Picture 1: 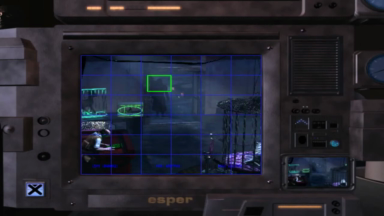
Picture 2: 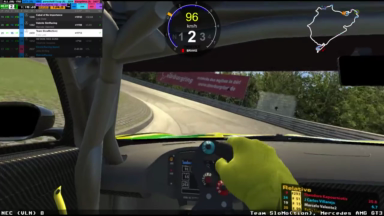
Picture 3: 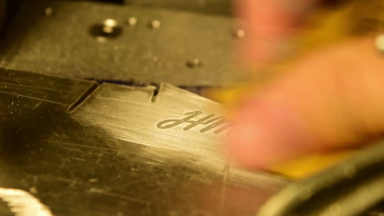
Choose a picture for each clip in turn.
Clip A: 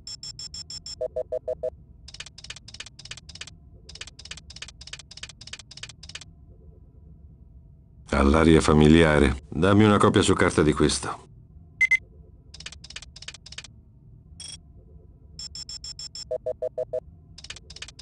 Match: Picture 1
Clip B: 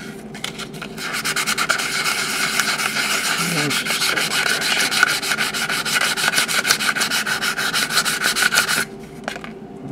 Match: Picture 3